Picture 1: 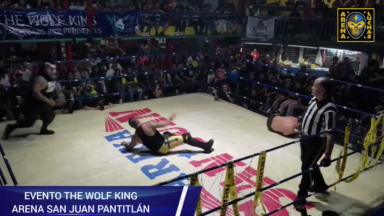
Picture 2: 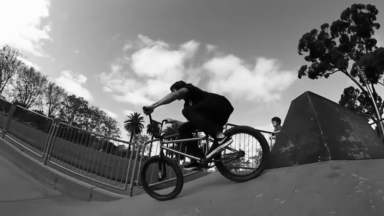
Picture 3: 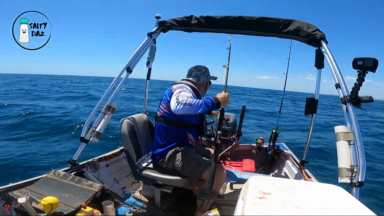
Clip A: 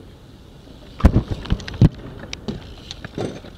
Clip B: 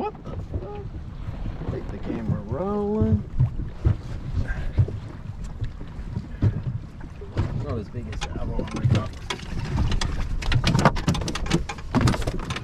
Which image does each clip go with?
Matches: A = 2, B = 3